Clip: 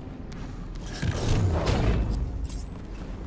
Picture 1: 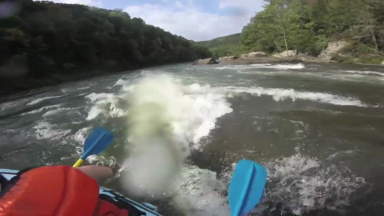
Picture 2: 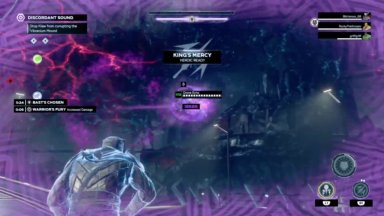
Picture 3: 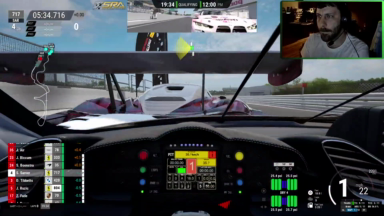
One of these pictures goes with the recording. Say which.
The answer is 2